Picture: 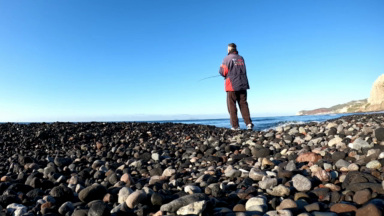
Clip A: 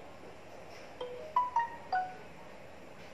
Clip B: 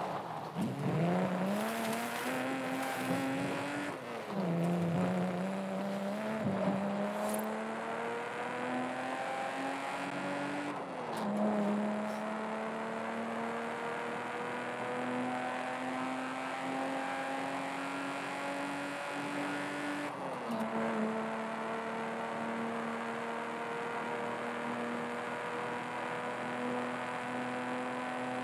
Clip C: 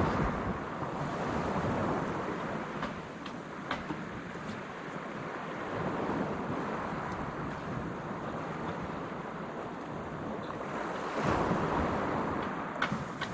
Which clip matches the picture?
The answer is C